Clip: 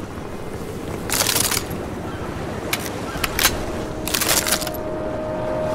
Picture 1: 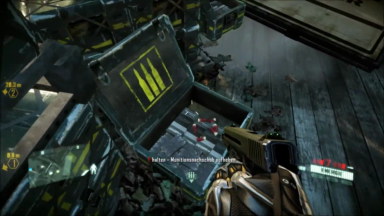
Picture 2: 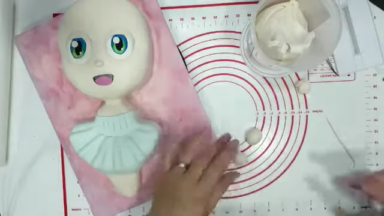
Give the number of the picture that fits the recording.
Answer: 1